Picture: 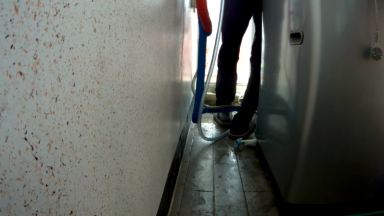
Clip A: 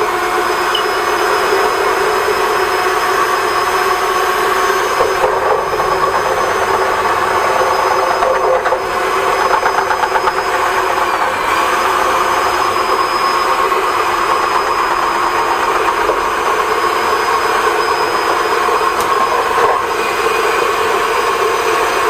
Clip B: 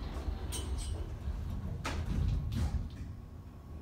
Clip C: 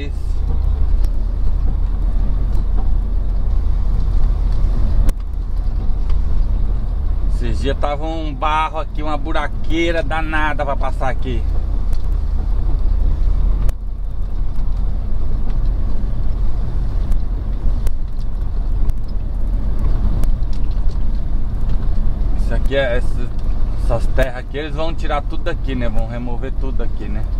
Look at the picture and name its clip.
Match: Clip A